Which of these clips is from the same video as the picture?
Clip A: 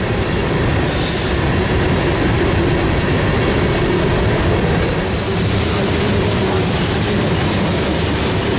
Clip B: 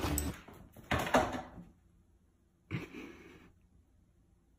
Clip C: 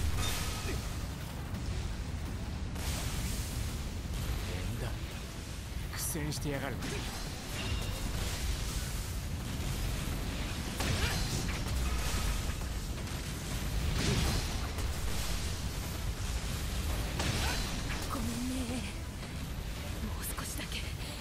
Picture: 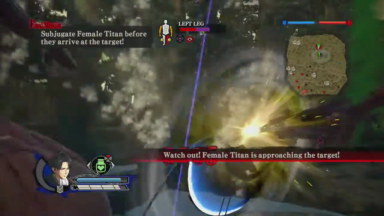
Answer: C